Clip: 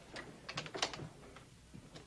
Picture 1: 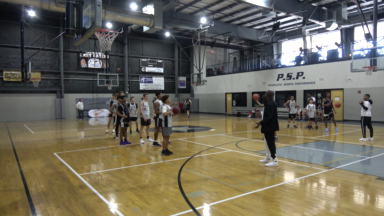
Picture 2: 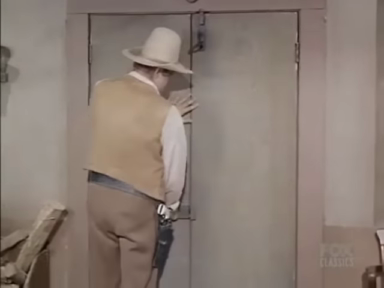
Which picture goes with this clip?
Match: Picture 2